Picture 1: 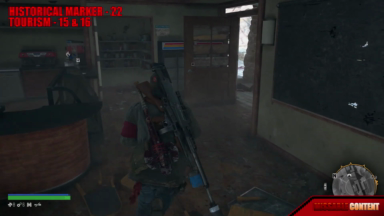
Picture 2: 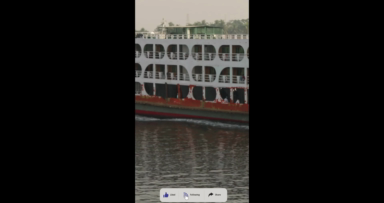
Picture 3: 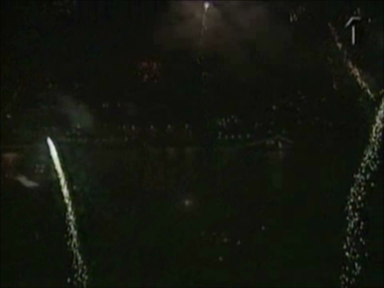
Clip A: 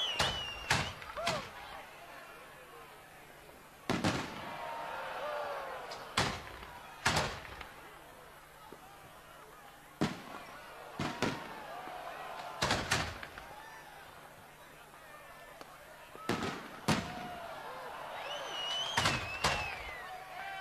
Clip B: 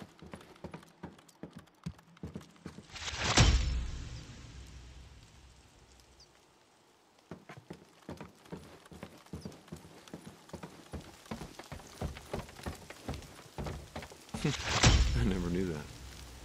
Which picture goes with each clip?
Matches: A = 3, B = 1